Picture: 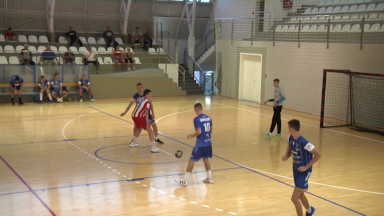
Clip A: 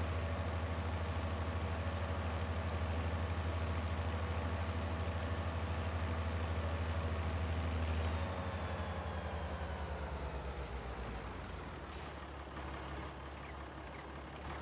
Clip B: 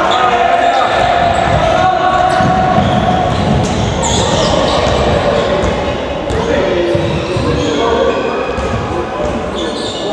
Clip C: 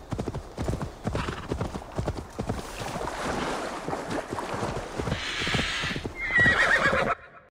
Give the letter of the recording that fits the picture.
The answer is B